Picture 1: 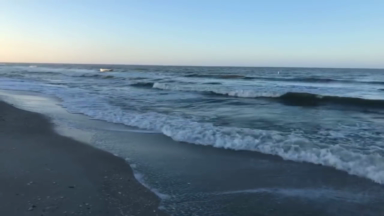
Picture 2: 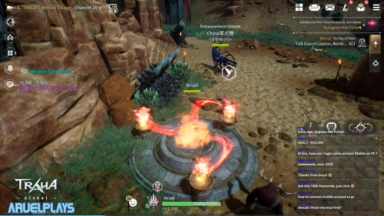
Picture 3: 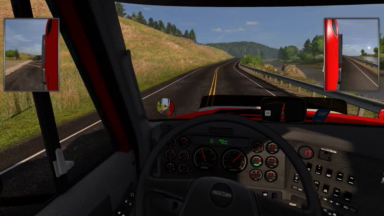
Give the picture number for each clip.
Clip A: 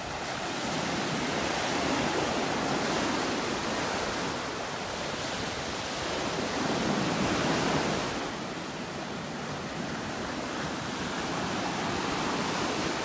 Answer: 1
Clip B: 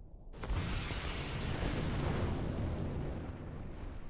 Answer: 2